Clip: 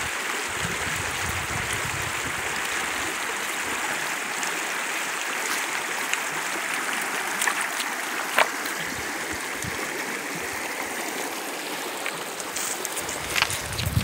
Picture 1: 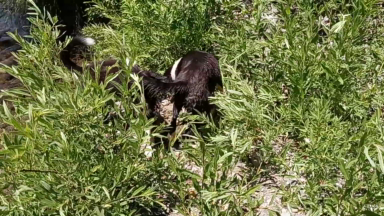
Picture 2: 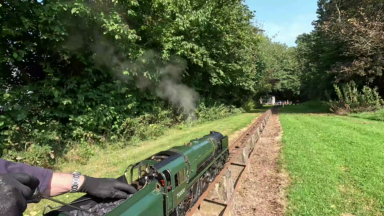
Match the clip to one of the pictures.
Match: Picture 1